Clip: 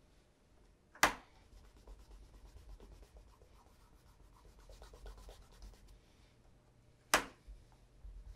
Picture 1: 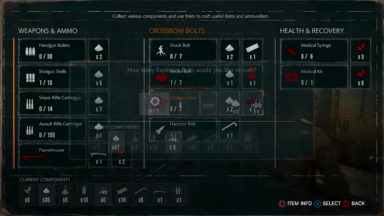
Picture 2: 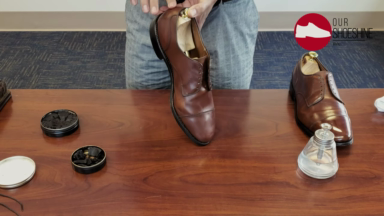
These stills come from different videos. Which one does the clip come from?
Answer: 2